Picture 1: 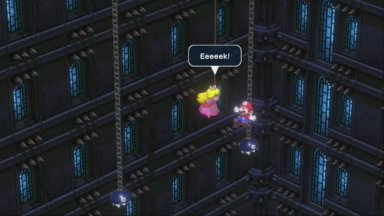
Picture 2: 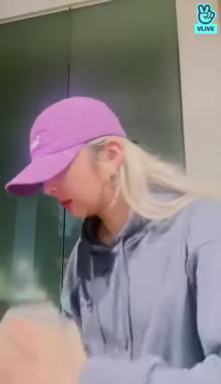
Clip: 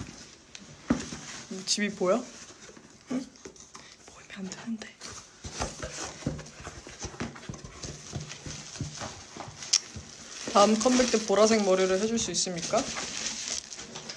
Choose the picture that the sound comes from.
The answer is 2